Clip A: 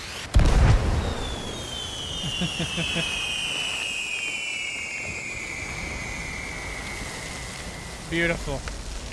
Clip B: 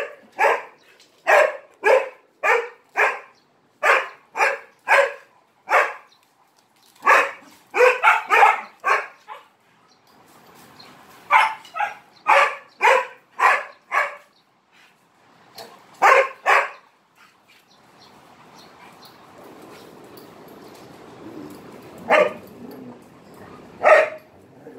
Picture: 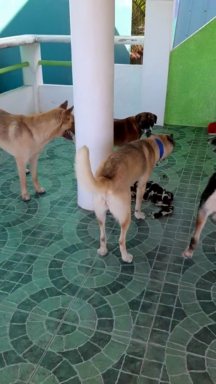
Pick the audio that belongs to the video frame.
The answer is B